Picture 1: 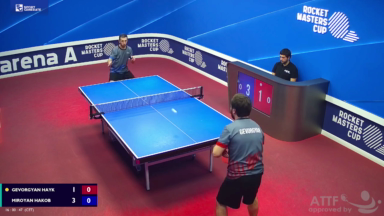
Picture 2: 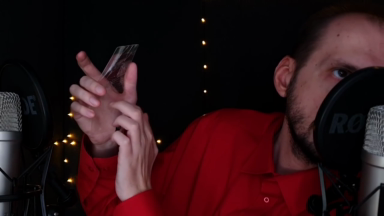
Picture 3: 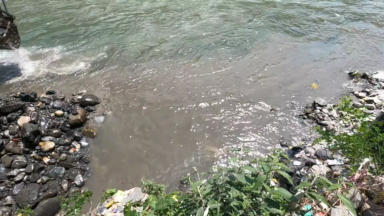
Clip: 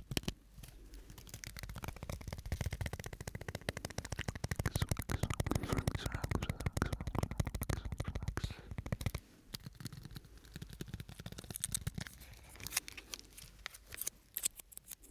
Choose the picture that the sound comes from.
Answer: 2